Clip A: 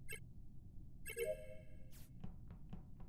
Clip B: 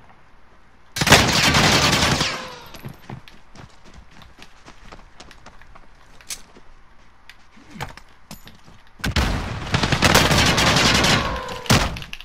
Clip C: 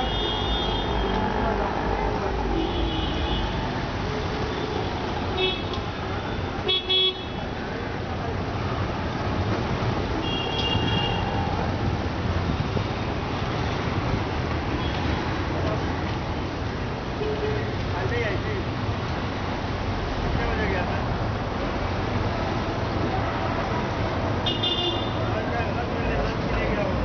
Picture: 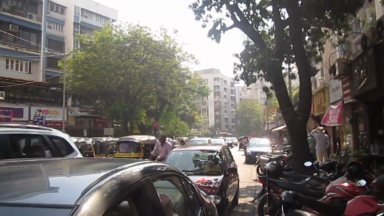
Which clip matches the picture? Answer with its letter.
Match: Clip C